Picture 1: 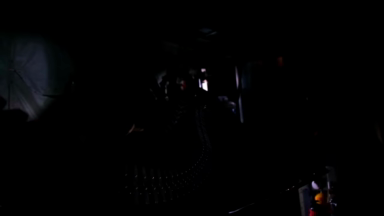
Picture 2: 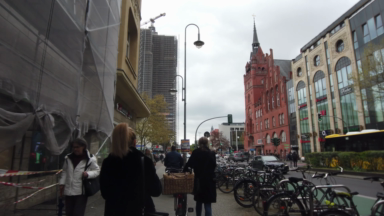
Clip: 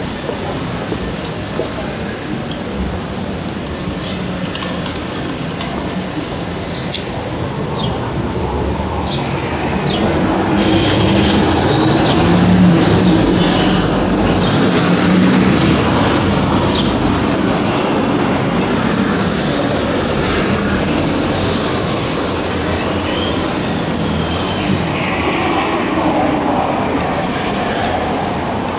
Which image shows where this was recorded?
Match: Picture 2